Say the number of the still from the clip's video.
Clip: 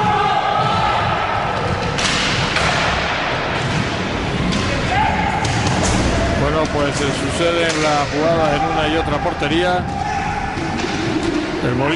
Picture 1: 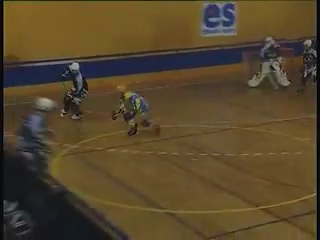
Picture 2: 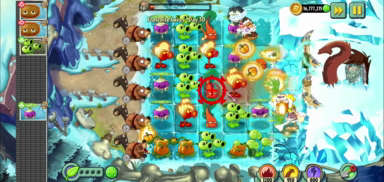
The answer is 1